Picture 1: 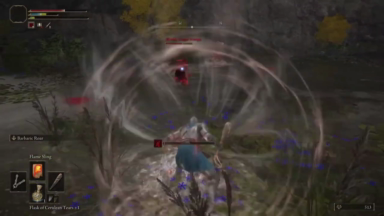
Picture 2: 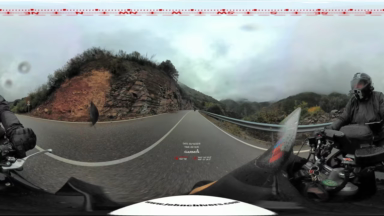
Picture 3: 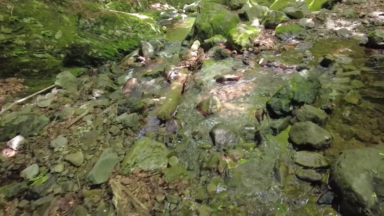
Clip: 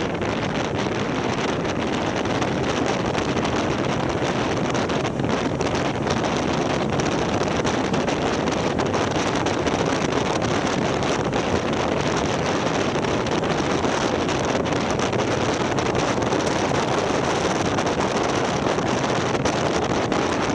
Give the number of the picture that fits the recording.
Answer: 2